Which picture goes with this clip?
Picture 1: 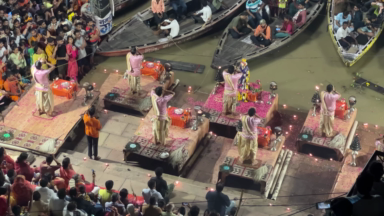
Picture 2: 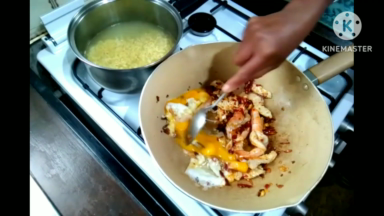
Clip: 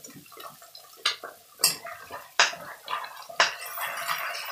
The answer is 2